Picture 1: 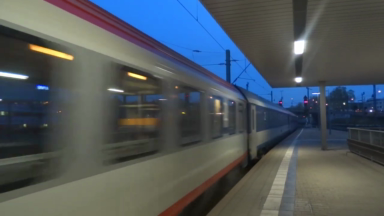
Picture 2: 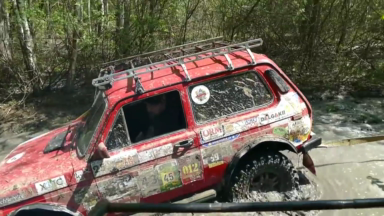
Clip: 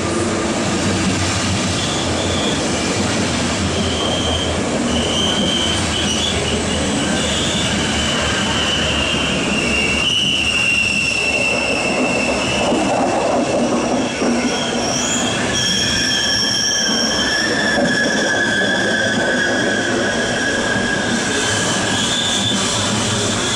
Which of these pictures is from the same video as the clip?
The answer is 1